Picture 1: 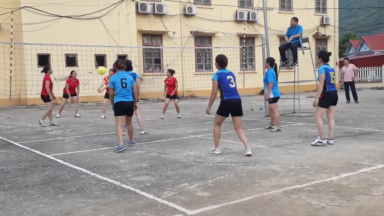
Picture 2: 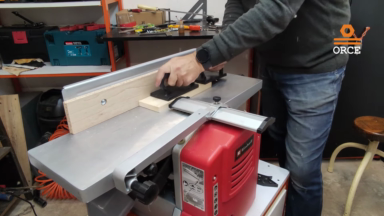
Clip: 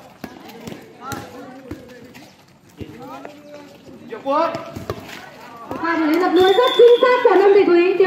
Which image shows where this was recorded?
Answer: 1